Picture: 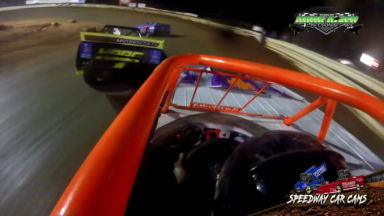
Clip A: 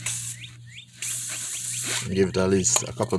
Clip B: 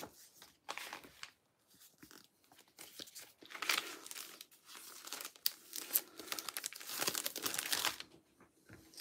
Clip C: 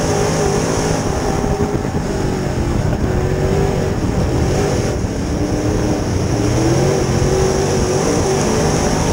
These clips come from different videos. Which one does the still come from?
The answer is C